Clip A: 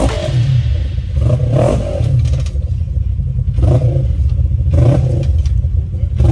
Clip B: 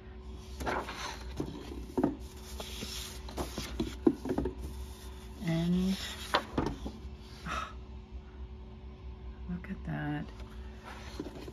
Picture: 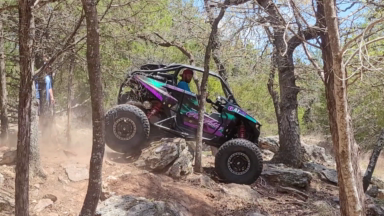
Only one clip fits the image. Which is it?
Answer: A